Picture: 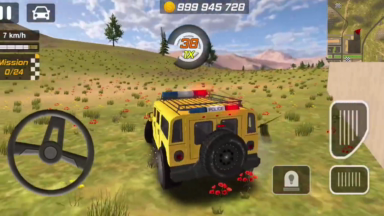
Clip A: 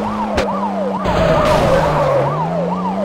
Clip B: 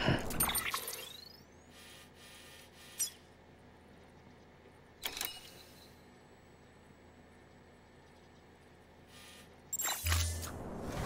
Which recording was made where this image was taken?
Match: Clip A